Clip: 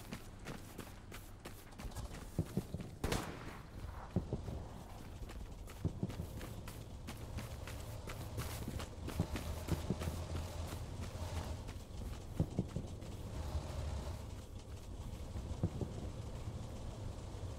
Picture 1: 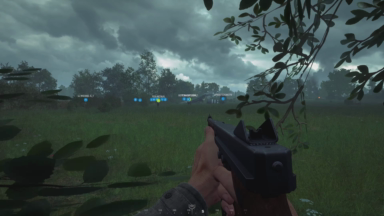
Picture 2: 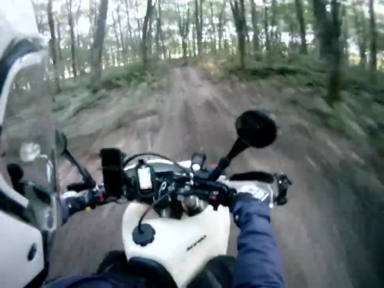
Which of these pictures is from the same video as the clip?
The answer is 1